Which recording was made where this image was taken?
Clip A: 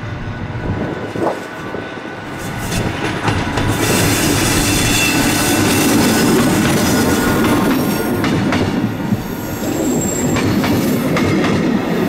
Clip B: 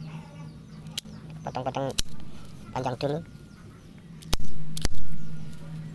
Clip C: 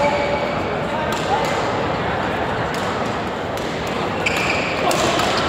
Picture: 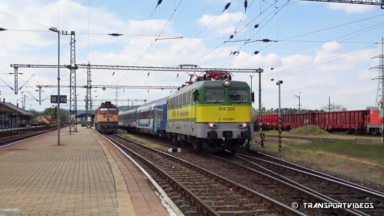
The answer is A